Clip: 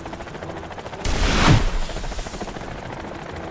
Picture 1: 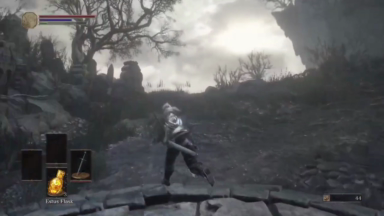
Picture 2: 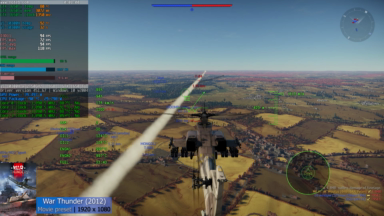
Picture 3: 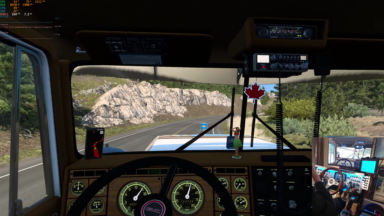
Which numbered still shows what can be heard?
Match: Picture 2